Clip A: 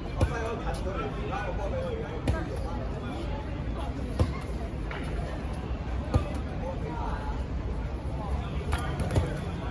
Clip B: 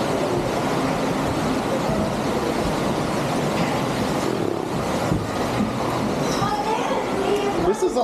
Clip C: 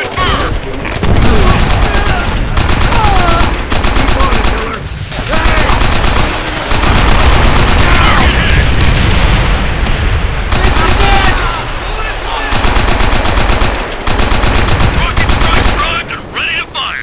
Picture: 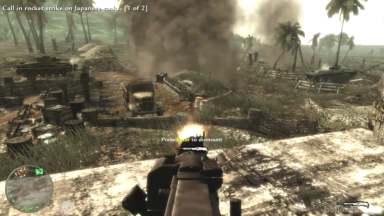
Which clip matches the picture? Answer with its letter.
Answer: C